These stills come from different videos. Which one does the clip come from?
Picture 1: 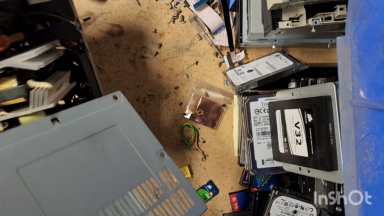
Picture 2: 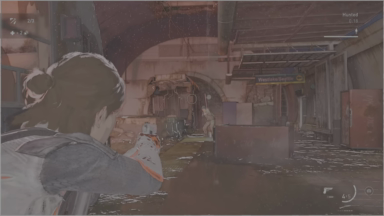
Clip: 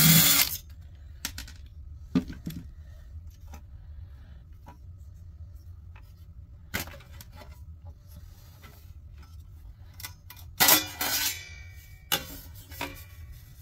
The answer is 1